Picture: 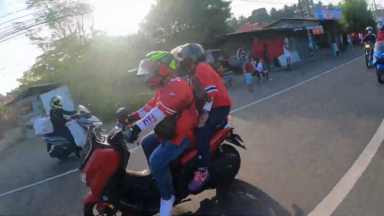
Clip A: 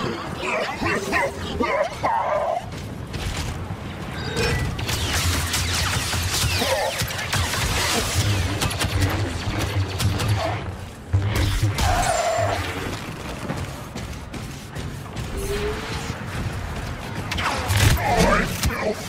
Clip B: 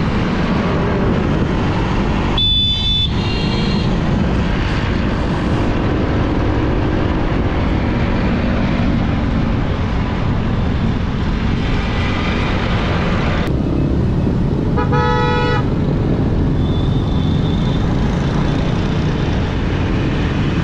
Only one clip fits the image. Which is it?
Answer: B